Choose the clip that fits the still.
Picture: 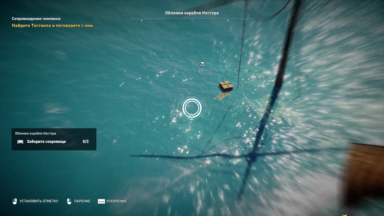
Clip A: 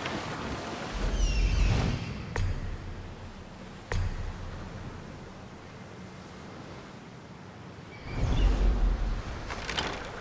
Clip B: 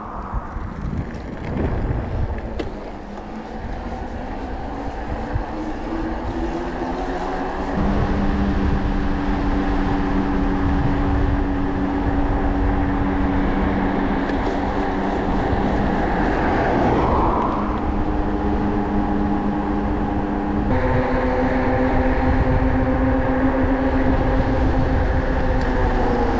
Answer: A